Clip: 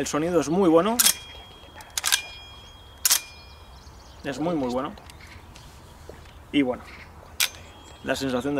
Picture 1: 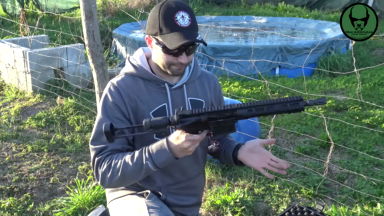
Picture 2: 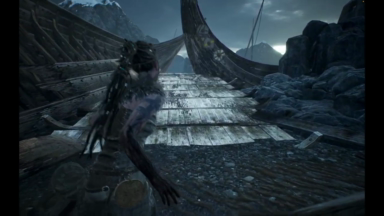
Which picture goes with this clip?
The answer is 1